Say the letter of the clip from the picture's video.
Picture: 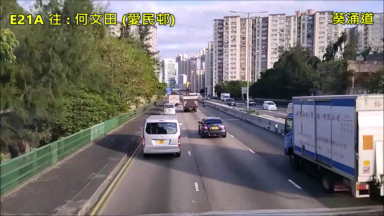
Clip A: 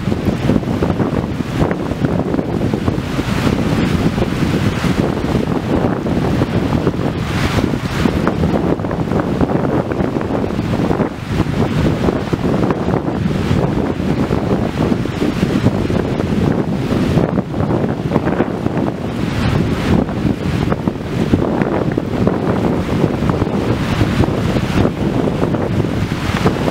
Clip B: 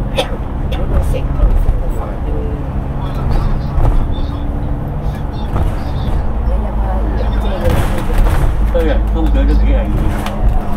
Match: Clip B